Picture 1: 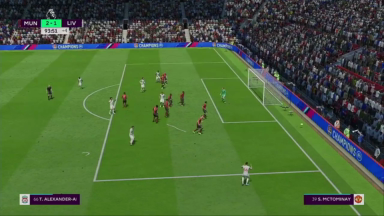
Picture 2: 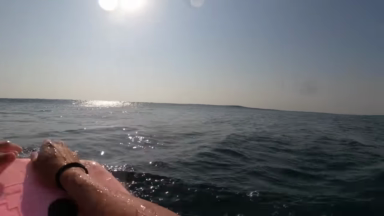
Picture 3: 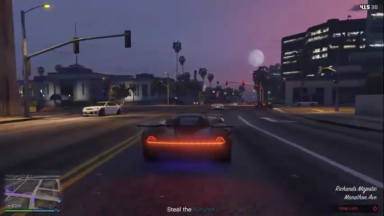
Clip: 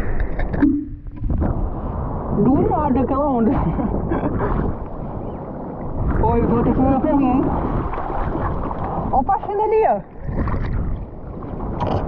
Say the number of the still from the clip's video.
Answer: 2